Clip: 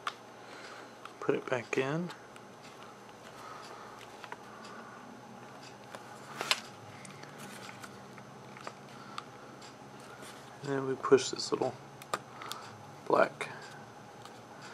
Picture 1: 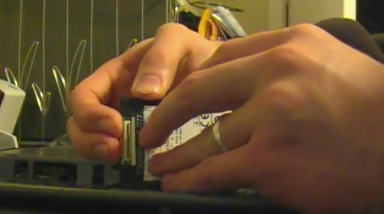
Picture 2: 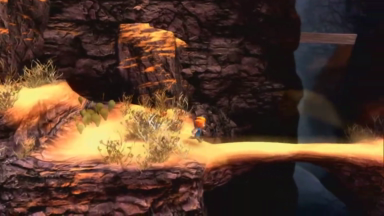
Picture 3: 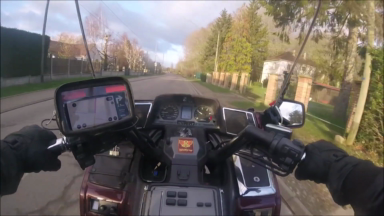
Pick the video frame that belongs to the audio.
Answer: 1